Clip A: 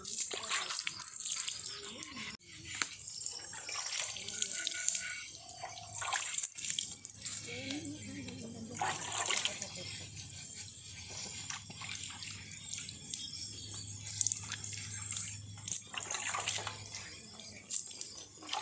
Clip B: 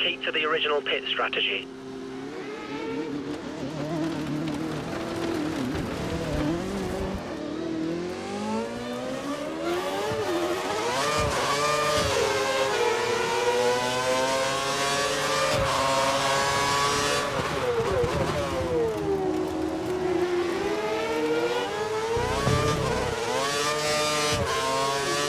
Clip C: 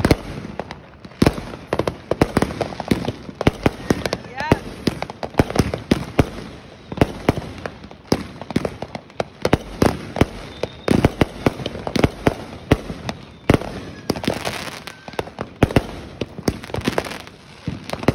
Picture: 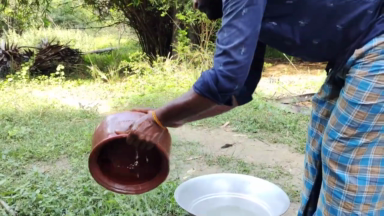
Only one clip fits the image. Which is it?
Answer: A